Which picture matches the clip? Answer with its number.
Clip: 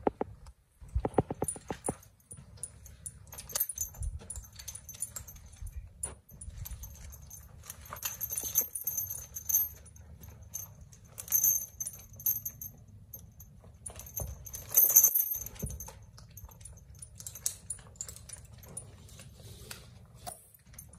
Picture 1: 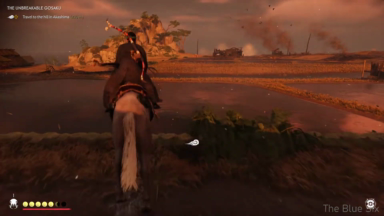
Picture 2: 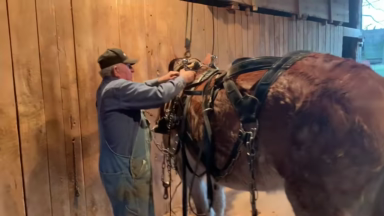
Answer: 2